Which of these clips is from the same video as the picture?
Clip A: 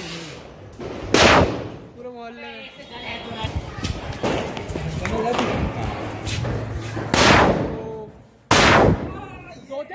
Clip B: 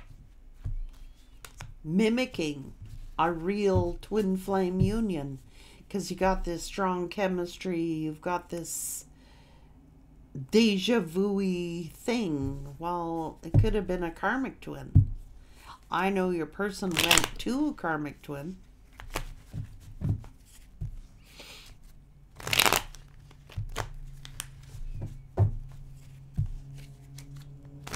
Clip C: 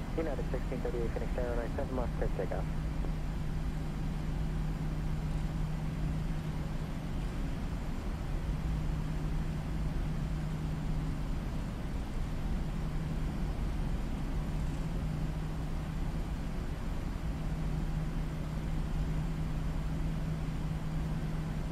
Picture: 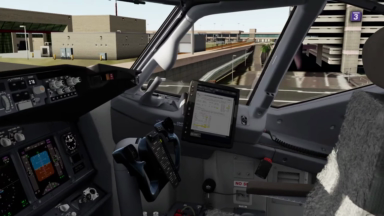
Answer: C